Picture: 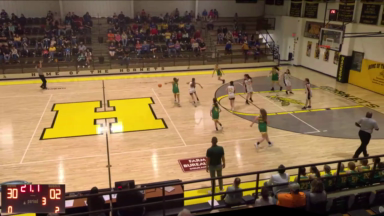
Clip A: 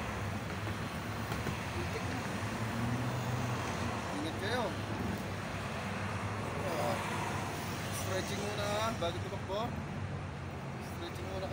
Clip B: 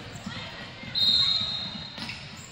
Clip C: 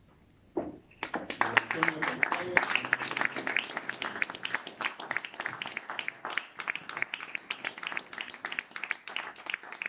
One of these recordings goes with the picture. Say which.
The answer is B